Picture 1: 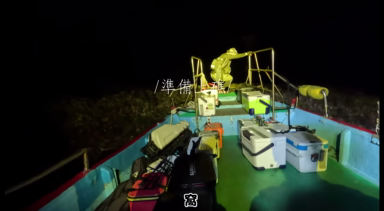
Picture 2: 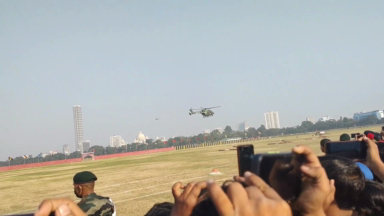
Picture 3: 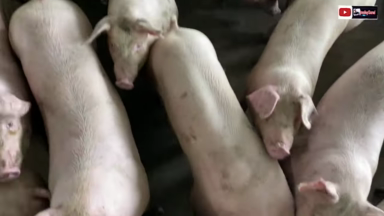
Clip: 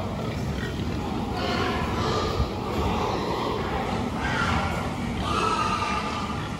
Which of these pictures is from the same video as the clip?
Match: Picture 3